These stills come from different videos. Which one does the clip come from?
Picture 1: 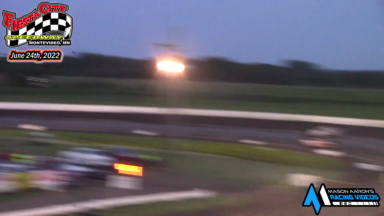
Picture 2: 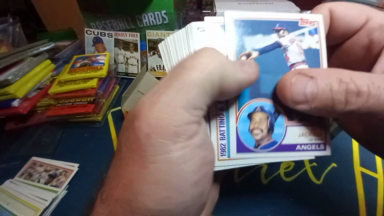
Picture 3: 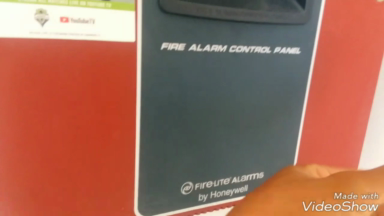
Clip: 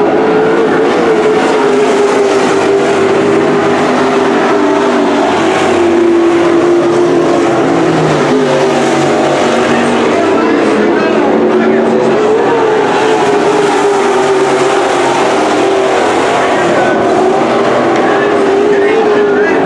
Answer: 1